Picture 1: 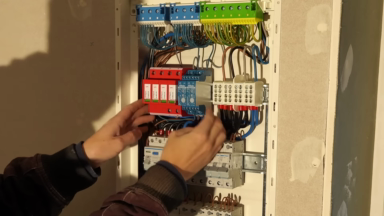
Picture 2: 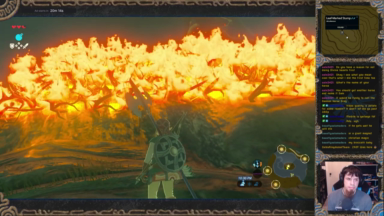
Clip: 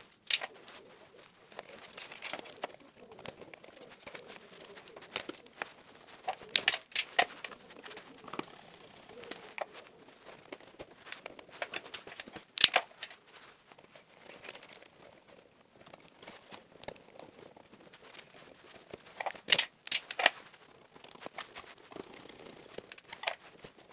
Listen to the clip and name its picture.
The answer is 1